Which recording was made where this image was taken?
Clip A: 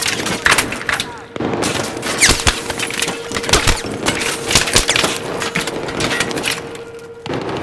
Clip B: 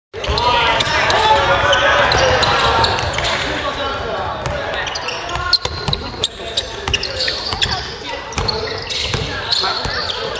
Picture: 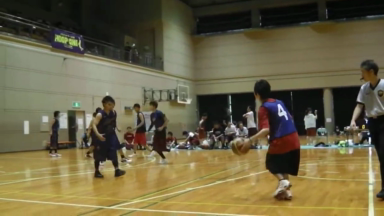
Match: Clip B